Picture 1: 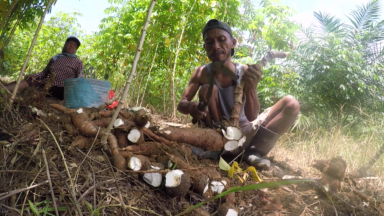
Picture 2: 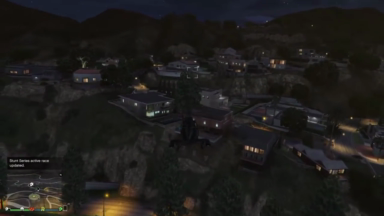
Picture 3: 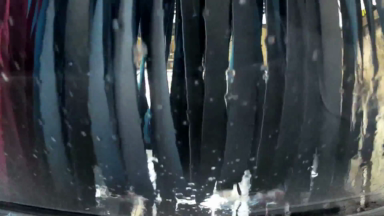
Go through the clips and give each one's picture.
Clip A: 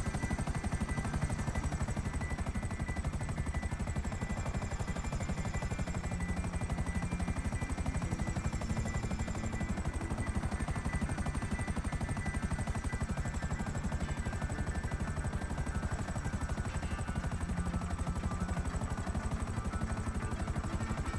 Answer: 2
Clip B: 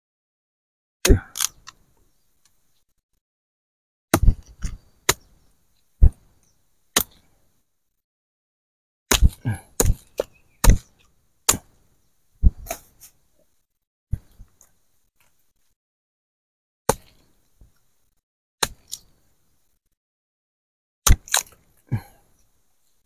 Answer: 1